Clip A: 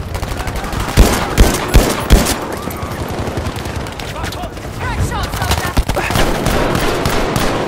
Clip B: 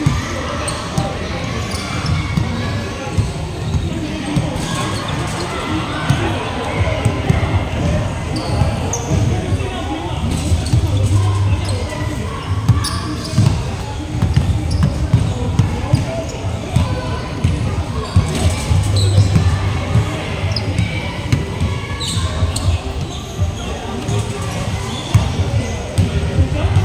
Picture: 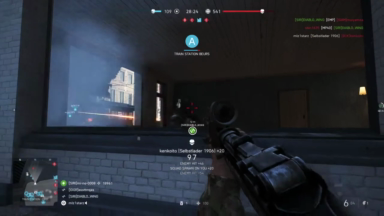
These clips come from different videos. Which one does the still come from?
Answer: A